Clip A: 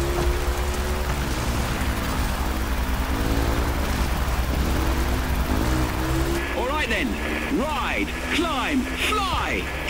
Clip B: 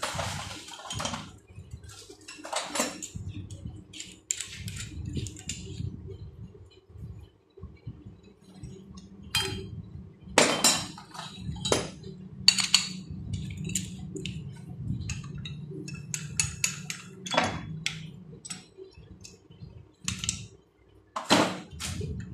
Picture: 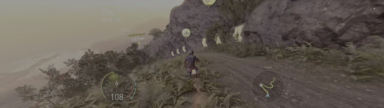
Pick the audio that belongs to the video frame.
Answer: A